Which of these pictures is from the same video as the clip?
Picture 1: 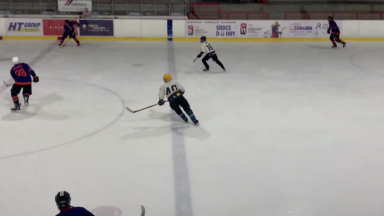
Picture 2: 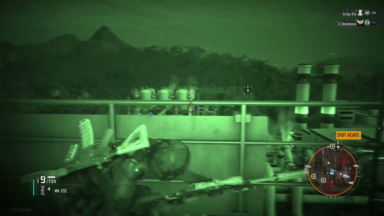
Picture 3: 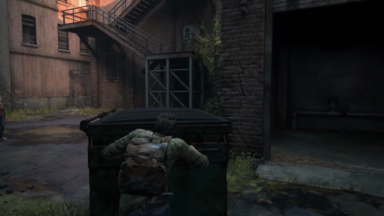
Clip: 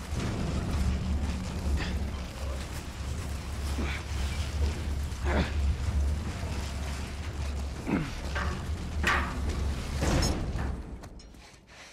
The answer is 3